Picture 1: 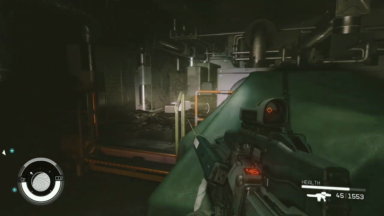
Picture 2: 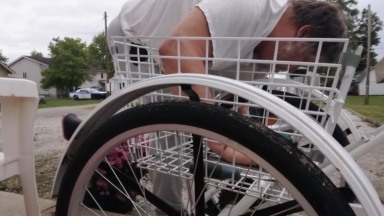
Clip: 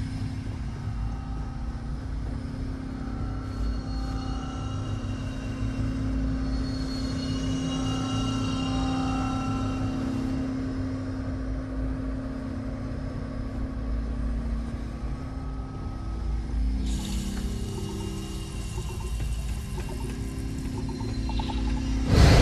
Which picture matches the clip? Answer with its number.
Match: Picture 1